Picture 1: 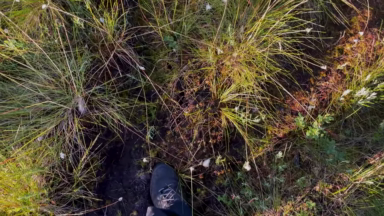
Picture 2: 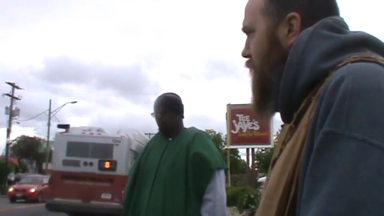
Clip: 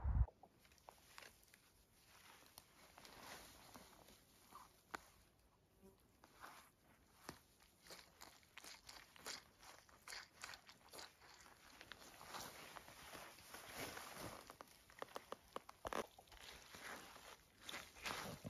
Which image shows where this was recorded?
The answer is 1